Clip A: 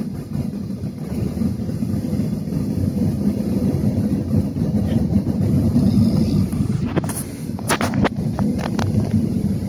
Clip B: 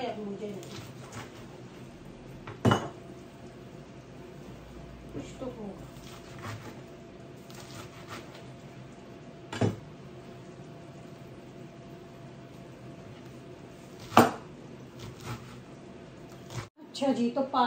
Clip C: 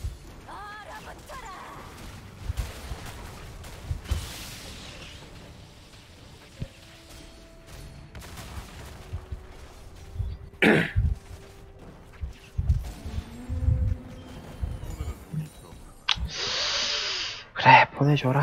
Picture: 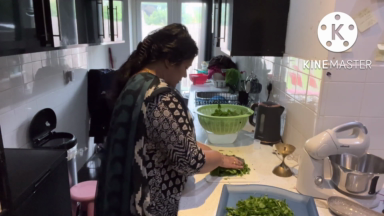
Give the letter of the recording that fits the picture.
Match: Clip B